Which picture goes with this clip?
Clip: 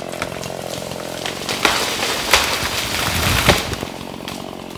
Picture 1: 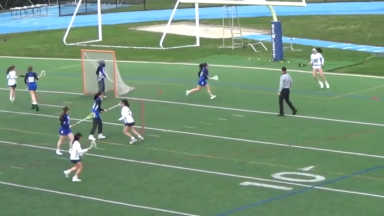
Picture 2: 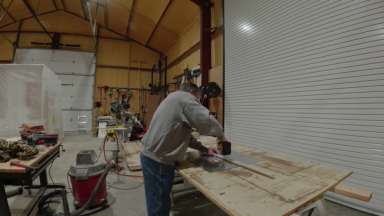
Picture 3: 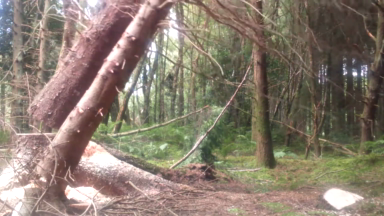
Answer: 3